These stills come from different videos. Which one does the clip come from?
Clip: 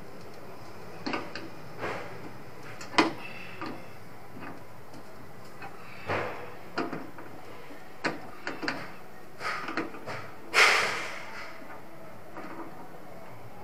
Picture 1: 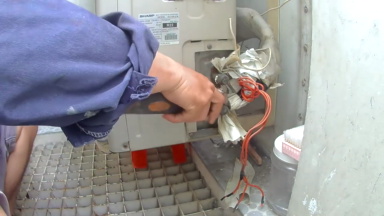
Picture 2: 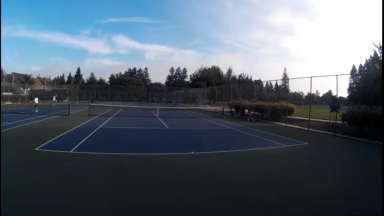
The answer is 1